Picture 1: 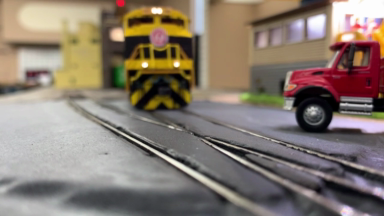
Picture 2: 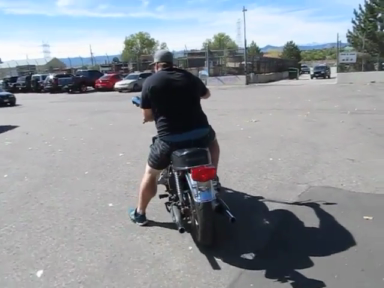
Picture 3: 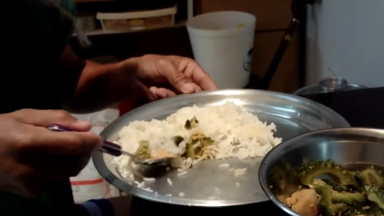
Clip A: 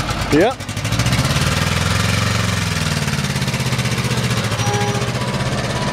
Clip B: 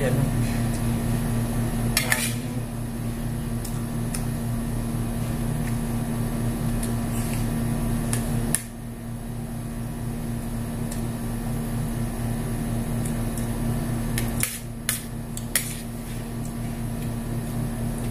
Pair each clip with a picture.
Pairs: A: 2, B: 3